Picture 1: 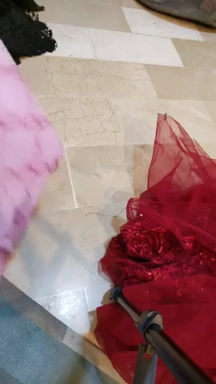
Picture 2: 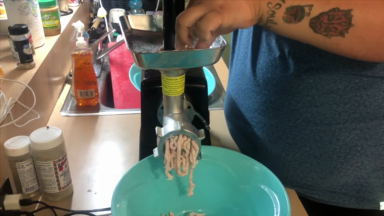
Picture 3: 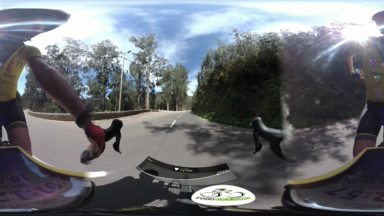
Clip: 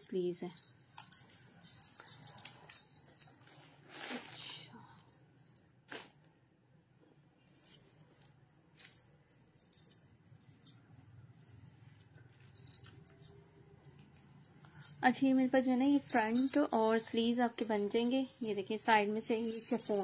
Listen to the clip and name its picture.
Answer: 1